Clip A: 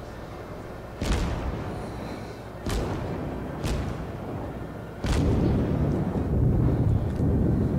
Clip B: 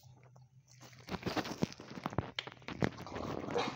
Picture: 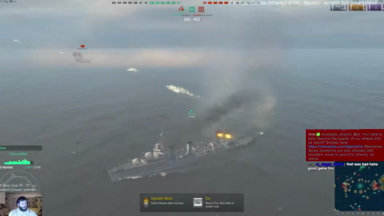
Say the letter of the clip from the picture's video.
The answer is A